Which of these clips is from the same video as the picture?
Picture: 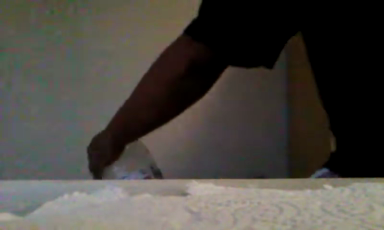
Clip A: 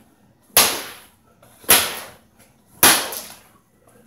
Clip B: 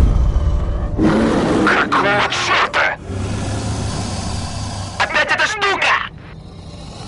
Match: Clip A